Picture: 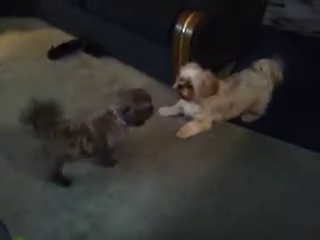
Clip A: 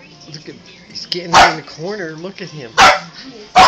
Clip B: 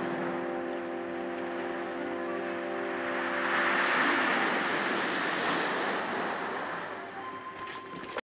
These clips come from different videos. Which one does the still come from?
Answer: A